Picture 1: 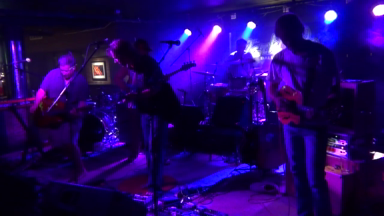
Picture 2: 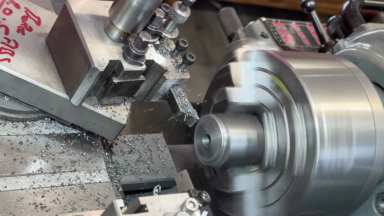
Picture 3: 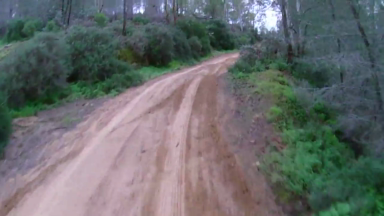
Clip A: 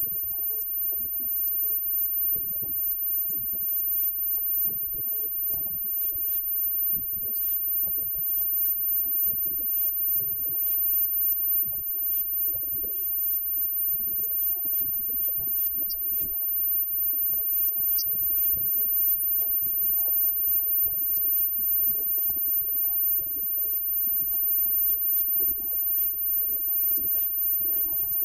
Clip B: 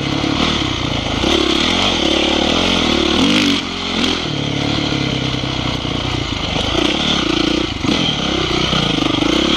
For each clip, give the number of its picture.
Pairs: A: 1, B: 3